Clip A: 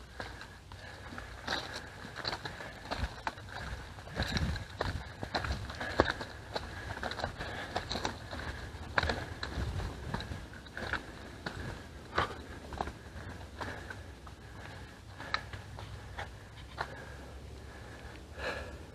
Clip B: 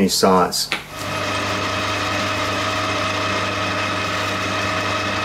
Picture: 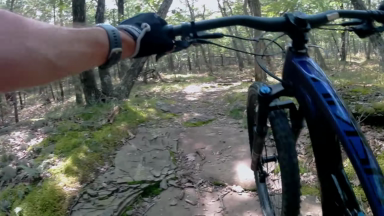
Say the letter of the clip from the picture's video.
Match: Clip A